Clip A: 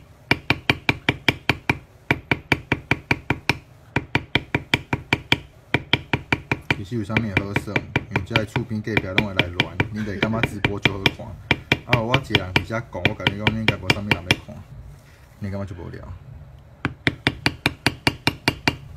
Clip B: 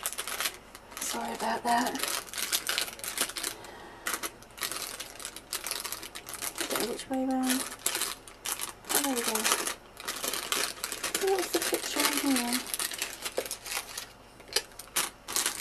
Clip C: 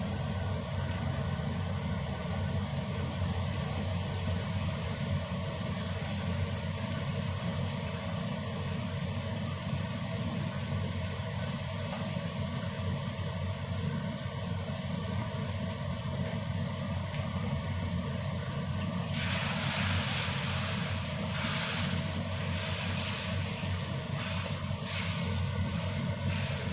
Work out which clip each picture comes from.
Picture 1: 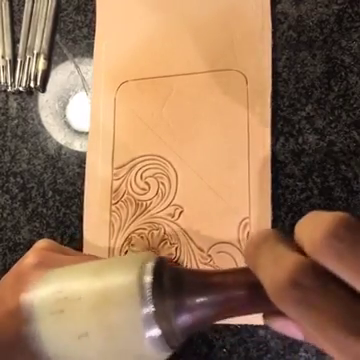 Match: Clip A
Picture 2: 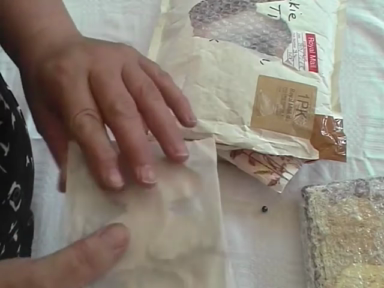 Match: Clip B